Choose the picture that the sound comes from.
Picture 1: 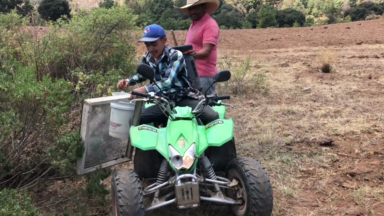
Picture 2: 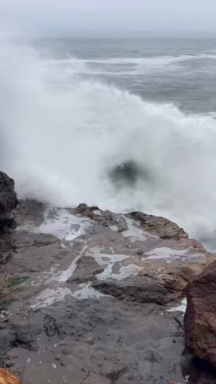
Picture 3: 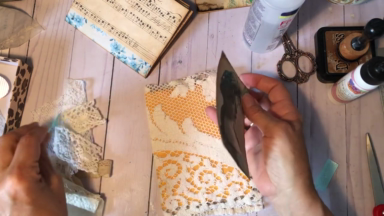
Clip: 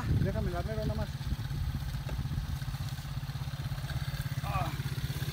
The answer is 1